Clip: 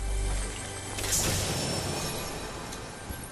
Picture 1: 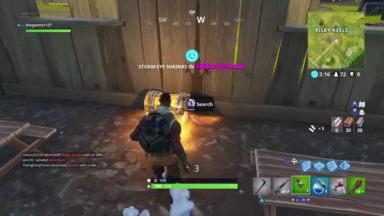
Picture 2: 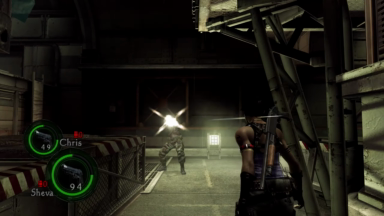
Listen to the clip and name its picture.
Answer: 1